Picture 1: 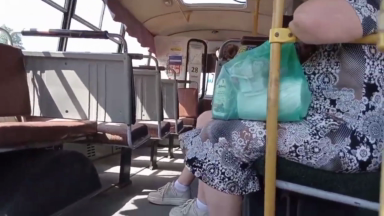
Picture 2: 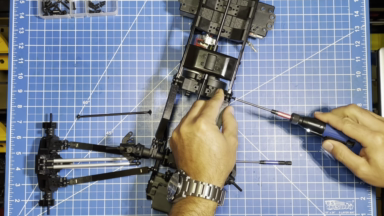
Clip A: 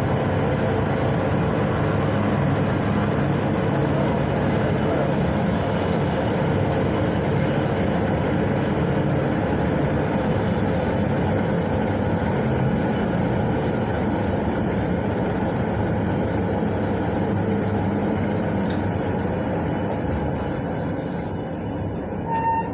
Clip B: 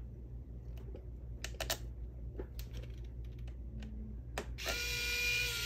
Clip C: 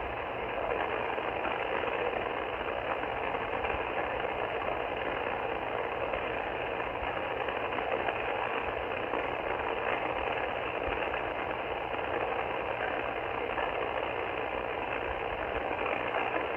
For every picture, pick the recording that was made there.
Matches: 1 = A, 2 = B